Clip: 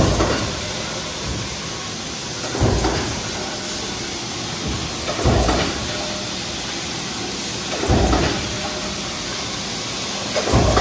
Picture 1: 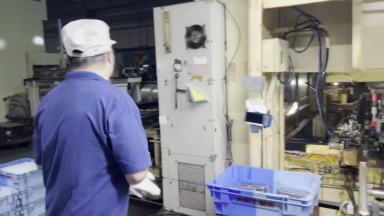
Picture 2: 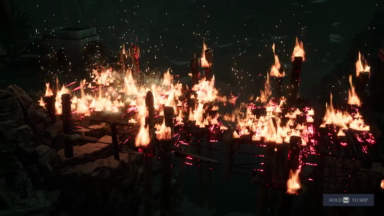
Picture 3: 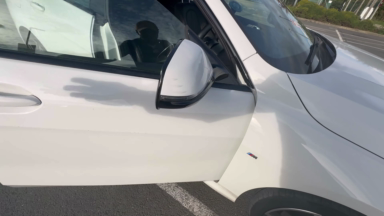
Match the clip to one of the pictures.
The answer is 1